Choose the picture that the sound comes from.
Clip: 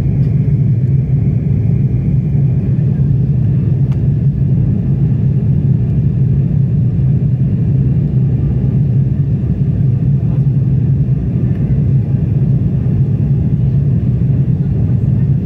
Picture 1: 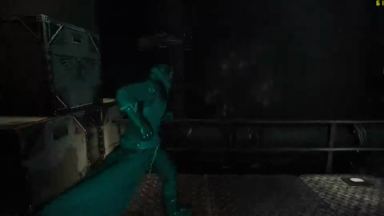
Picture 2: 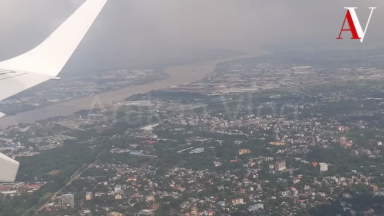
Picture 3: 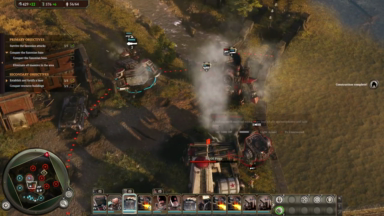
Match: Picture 2